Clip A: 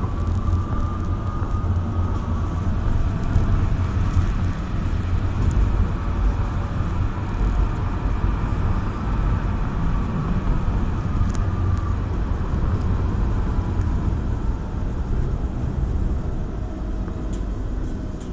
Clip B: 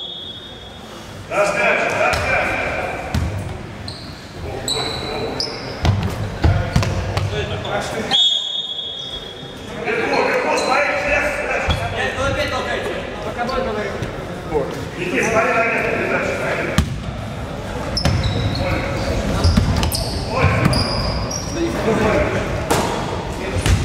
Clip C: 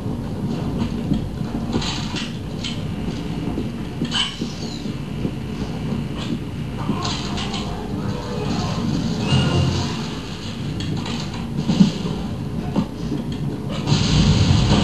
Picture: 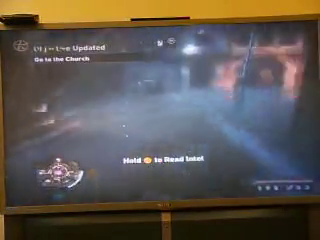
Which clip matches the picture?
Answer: C